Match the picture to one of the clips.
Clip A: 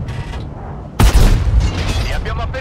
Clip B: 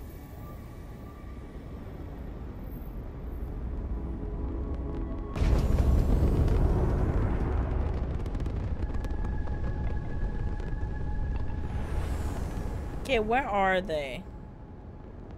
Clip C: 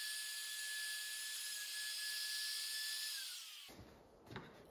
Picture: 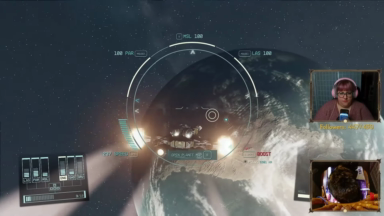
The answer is B